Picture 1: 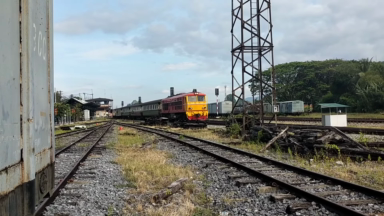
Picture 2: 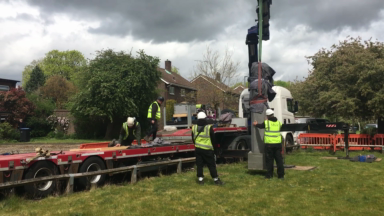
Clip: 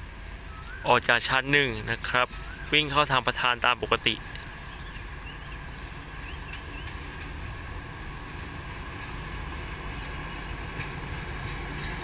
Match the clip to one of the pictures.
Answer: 1